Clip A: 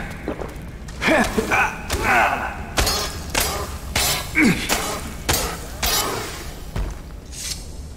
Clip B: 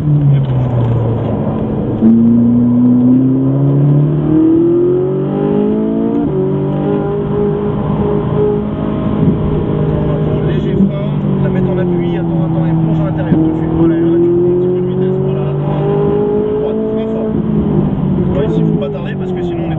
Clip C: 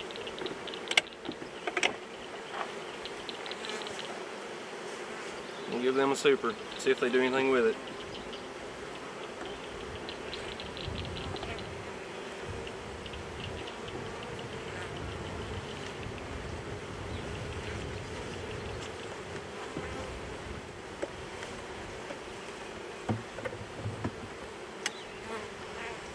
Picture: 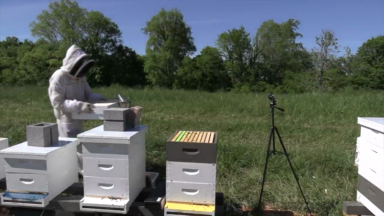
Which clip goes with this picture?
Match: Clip C